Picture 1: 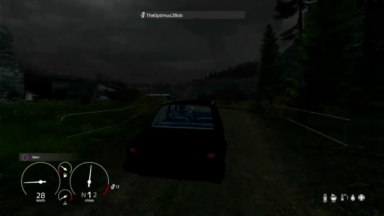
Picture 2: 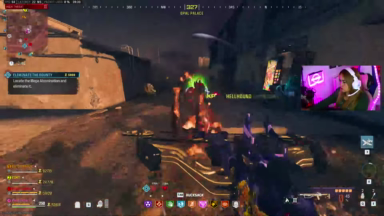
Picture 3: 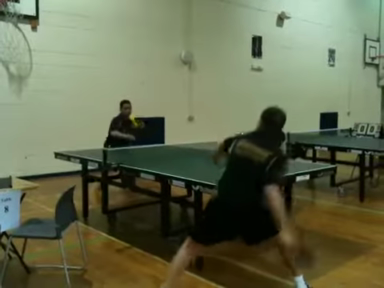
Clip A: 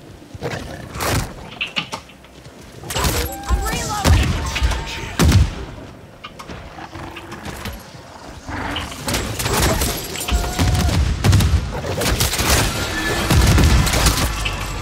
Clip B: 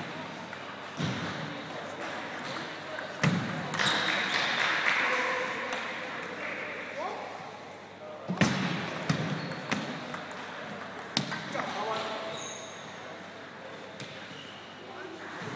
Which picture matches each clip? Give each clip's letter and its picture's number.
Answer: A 2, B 3